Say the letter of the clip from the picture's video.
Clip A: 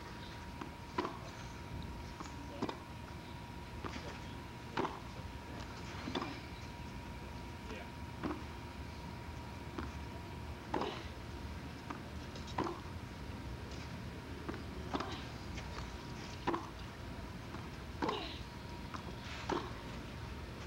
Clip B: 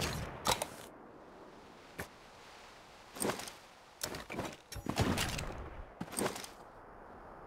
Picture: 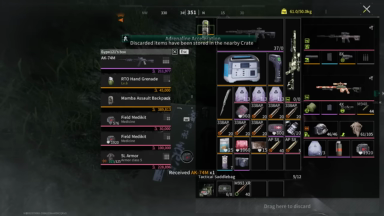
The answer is B